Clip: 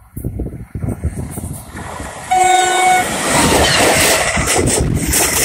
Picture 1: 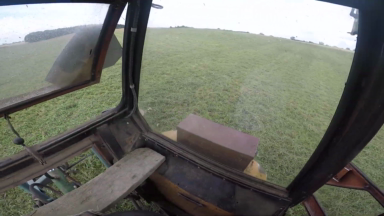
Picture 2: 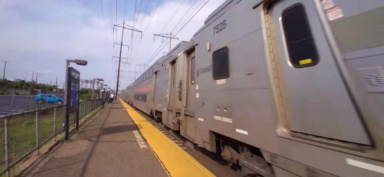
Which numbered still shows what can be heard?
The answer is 2